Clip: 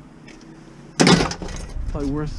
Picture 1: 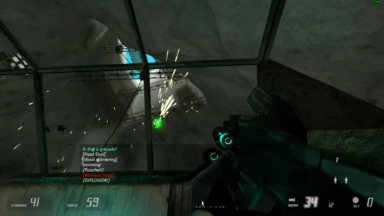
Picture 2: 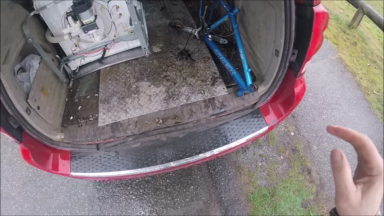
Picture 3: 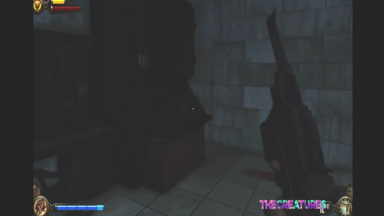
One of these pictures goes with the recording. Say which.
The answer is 2